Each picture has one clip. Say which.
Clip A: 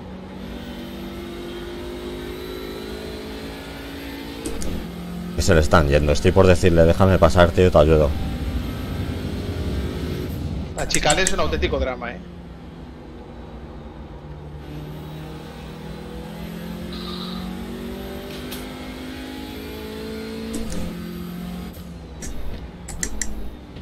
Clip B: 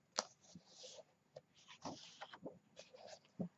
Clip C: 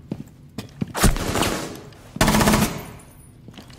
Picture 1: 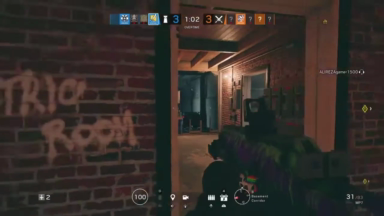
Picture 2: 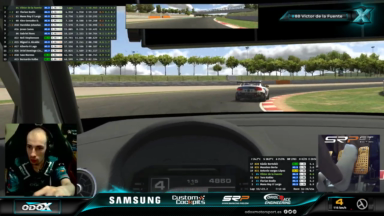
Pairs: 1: C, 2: A